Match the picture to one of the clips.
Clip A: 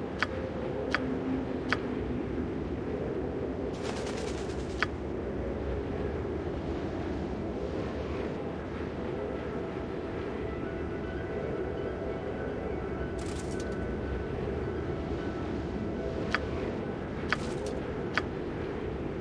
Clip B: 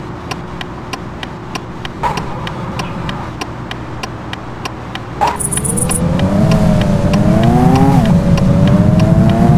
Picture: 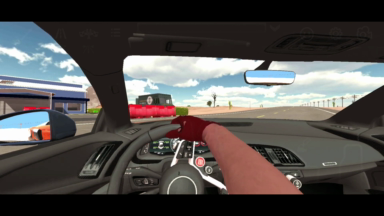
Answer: B